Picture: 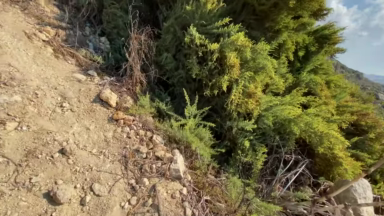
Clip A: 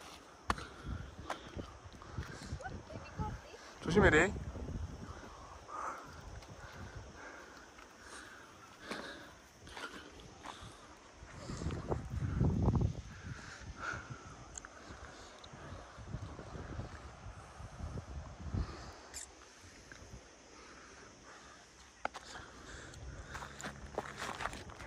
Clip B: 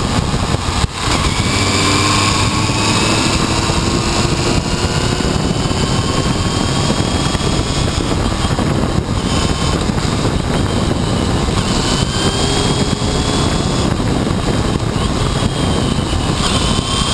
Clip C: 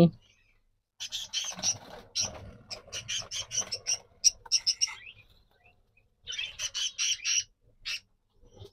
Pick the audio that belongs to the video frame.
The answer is A